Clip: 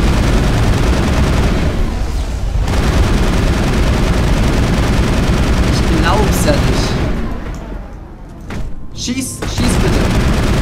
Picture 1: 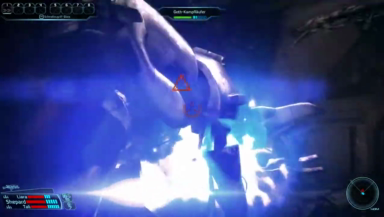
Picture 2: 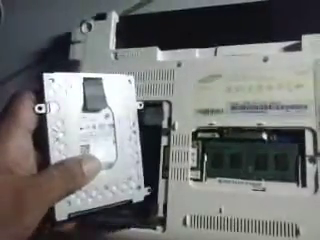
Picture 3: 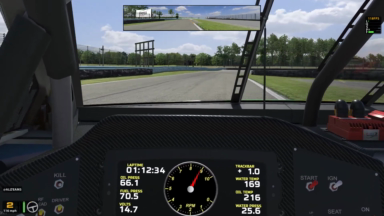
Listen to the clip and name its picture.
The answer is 1